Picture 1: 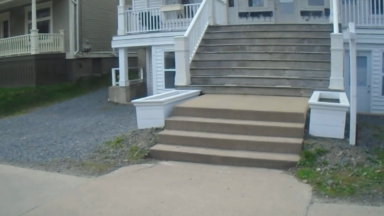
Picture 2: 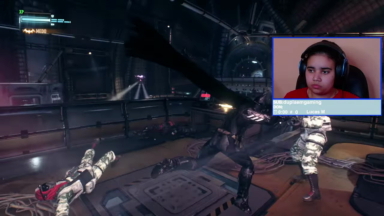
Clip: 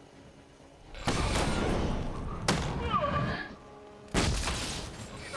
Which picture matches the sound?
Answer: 2